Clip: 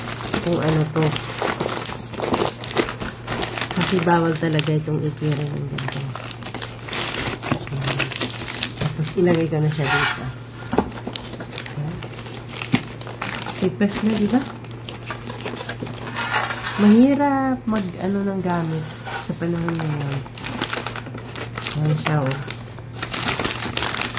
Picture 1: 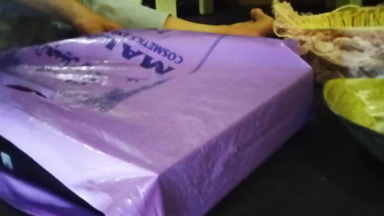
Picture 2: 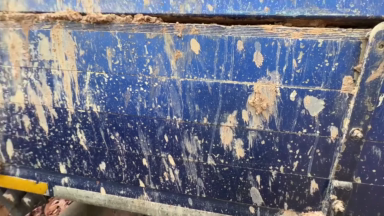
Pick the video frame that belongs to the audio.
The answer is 1